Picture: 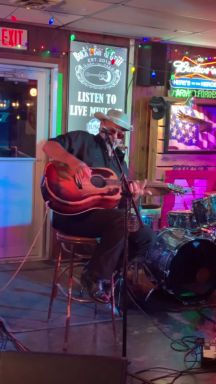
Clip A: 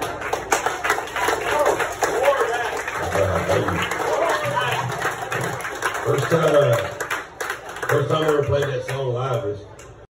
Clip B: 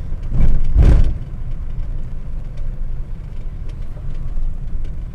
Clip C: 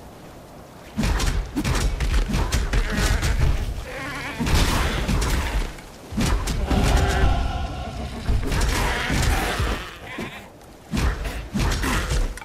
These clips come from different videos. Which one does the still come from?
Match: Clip A